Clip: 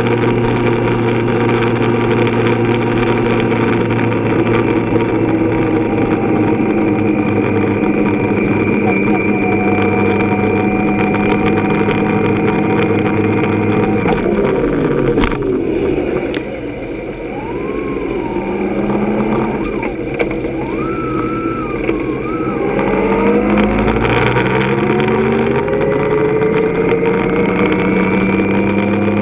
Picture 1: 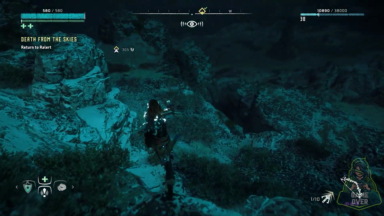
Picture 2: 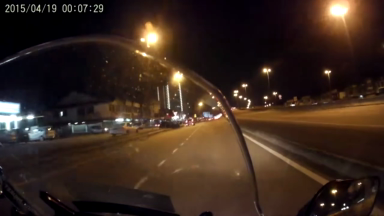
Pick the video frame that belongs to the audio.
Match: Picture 2